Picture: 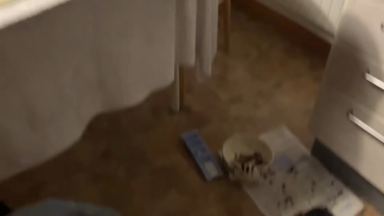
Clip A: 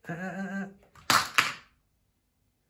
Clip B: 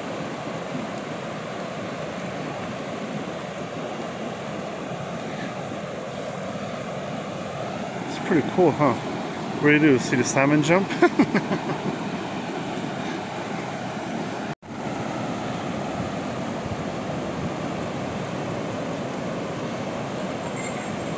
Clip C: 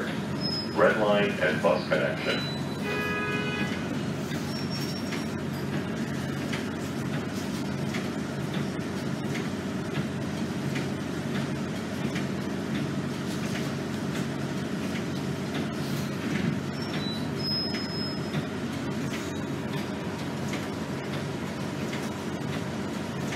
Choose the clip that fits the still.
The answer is A